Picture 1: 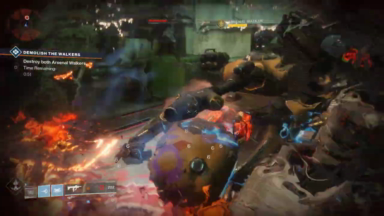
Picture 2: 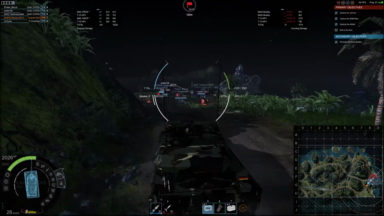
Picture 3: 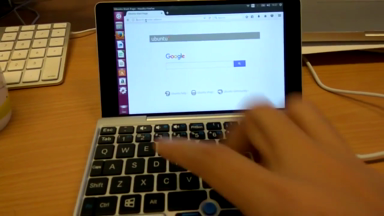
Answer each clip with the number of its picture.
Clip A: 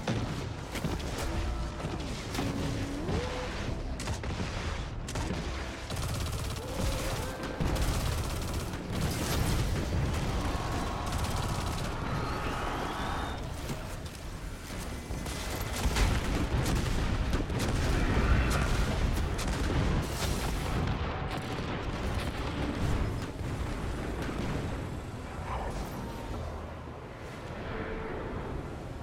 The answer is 1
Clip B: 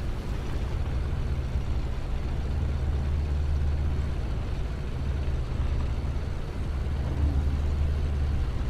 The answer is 2